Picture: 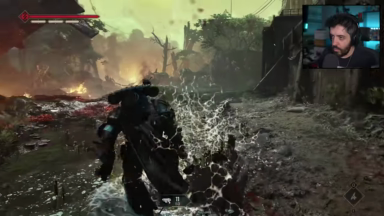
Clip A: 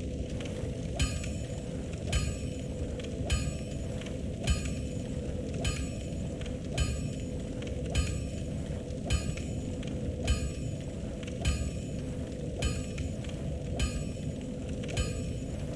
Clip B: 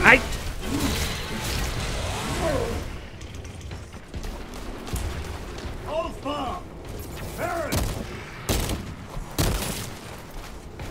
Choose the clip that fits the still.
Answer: B